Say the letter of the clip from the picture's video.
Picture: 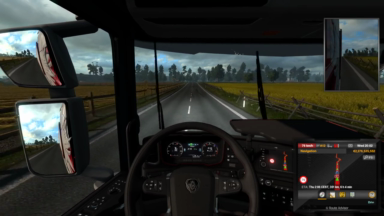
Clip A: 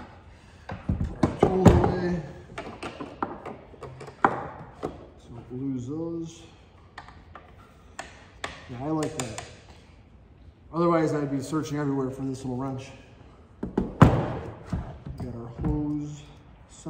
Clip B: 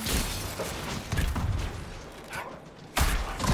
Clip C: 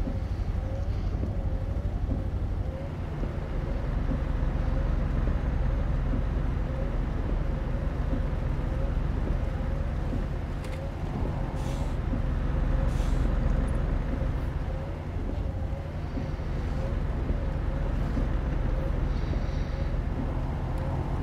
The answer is C